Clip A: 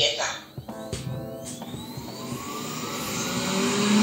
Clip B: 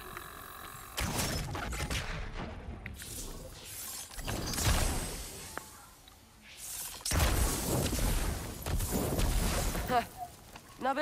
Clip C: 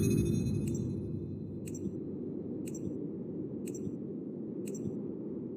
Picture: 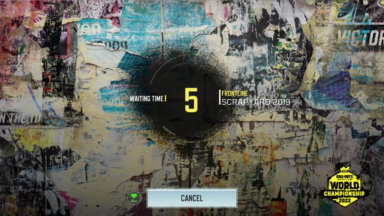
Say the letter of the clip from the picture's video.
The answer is C